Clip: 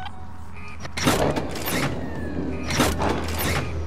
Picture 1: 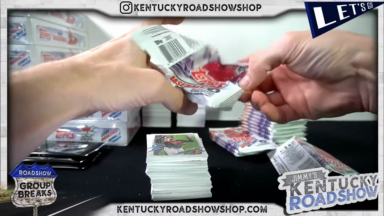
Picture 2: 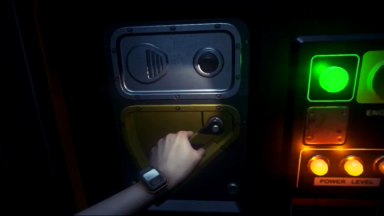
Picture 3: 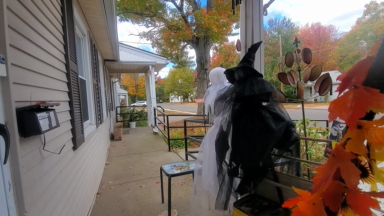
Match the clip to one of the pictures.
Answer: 2